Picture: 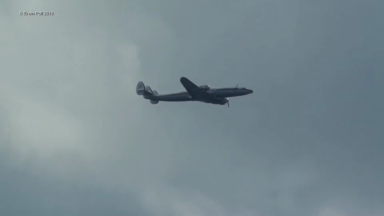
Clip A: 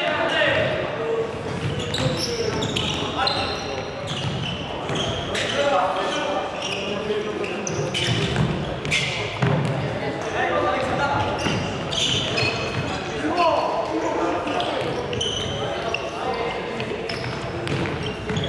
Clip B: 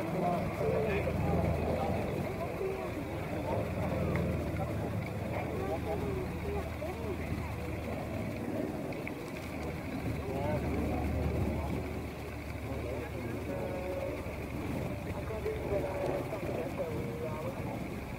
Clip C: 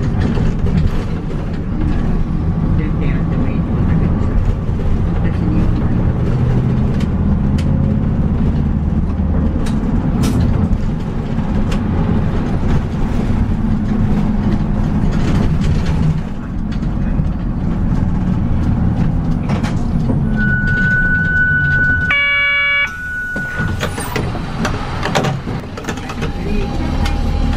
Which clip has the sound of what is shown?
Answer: B